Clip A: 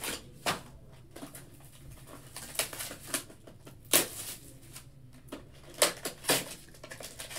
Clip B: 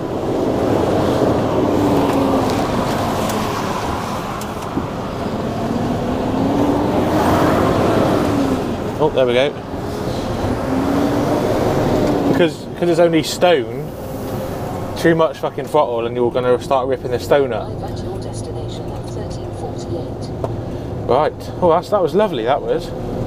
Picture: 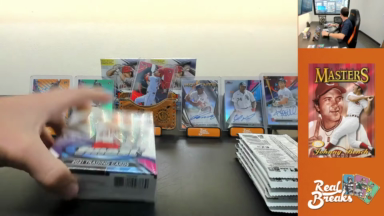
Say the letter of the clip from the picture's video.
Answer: A